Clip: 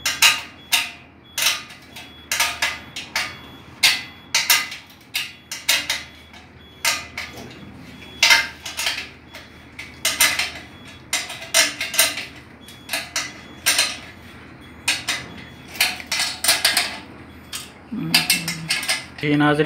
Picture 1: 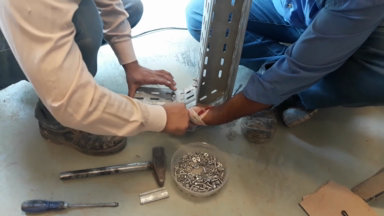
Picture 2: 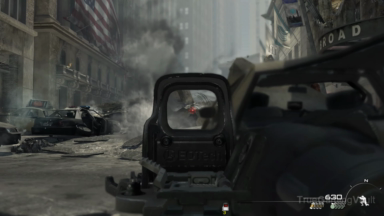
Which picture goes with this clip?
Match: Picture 1